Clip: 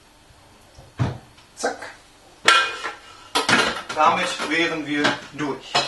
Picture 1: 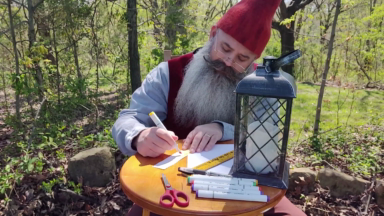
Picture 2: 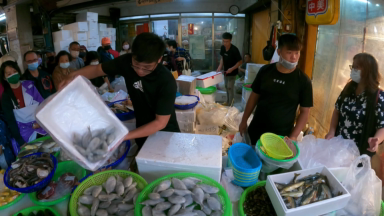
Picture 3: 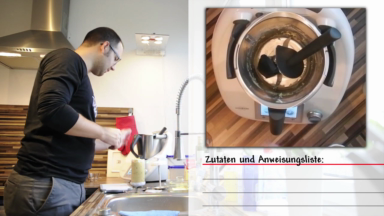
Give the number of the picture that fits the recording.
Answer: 3